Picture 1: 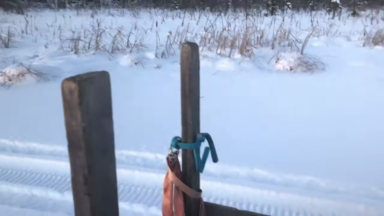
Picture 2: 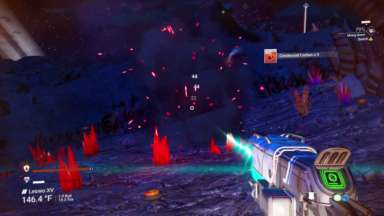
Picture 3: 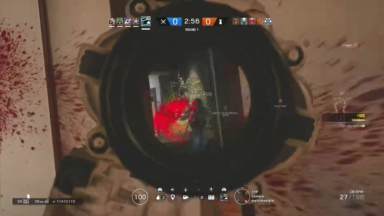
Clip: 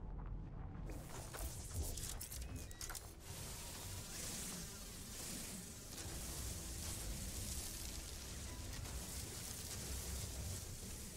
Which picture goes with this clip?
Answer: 2